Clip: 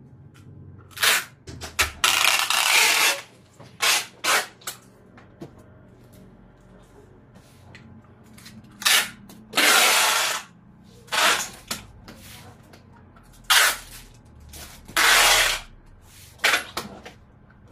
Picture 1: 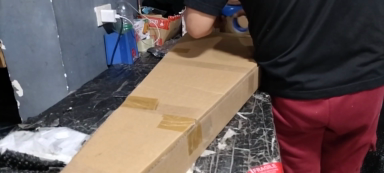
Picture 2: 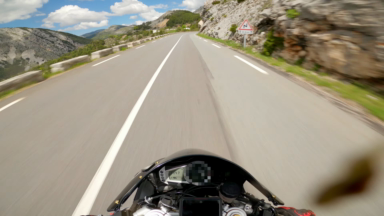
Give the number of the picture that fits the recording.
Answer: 1